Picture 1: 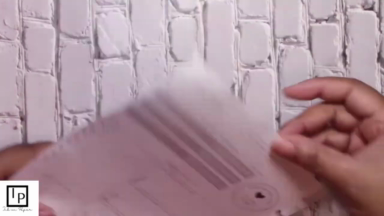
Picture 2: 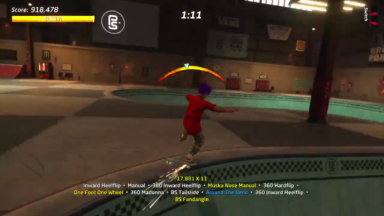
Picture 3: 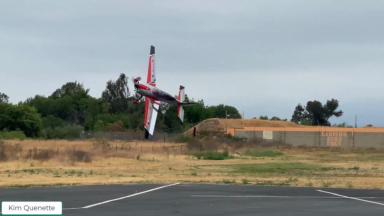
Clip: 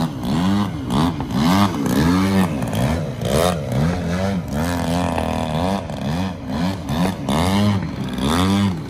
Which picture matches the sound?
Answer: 3